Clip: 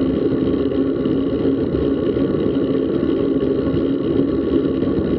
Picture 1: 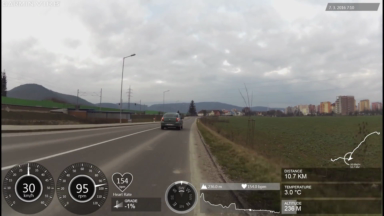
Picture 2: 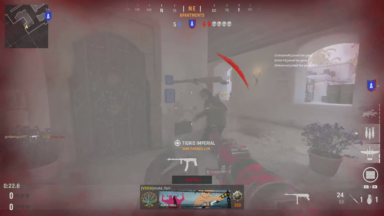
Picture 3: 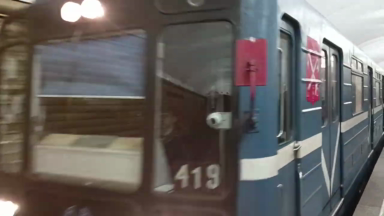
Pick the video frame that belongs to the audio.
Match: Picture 1